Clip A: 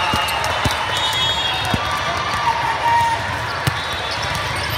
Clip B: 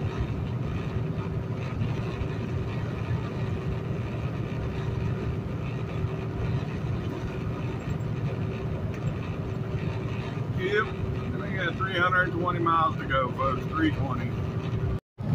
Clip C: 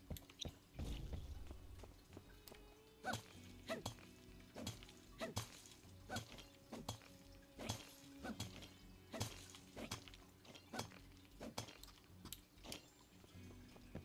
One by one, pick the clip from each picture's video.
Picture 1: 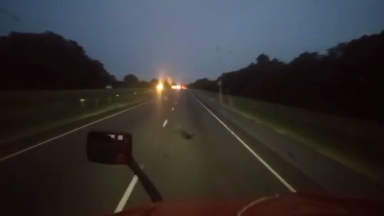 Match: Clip B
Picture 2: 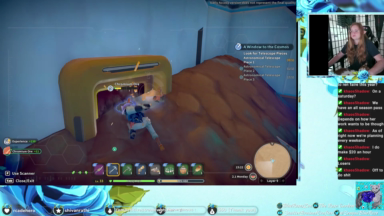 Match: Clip C